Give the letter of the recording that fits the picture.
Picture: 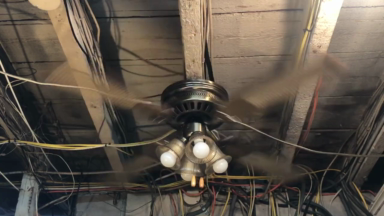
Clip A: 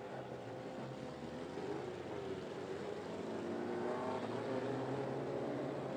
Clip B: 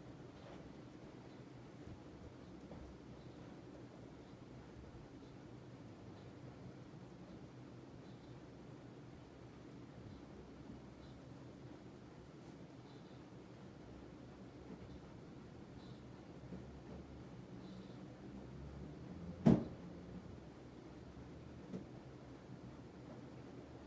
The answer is B